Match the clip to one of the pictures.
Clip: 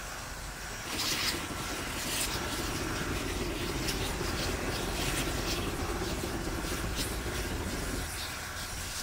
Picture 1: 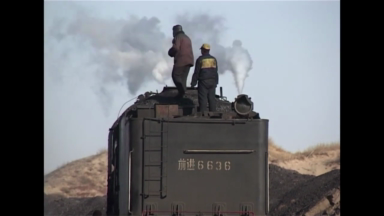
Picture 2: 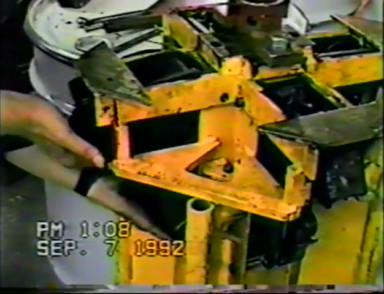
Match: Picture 1